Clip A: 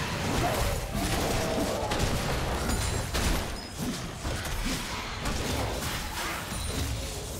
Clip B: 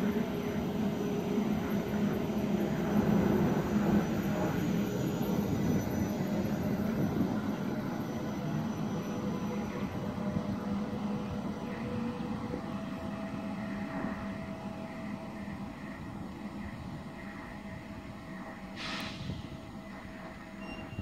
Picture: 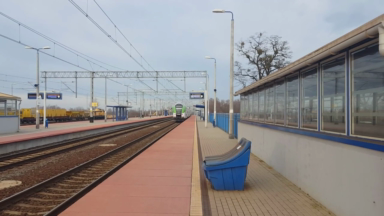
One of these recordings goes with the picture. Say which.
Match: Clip B